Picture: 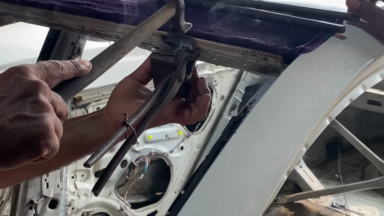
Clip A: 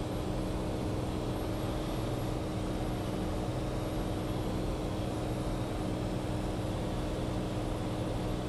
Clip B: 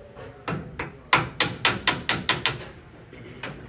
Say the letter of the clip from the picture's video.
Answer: B